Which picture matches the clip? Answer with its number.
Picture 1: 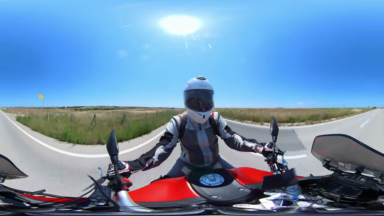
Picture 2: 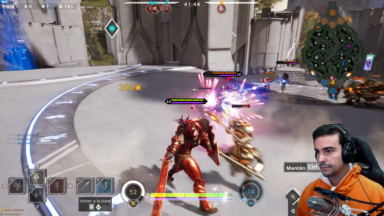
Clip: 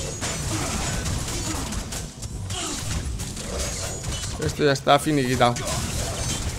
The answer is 2